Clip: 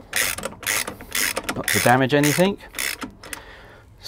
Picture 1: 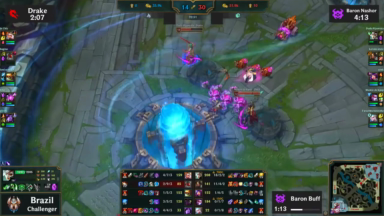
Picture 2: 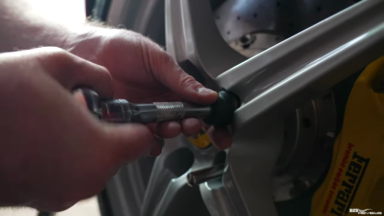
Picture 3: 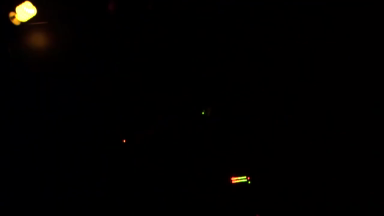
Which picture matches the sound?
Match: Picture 2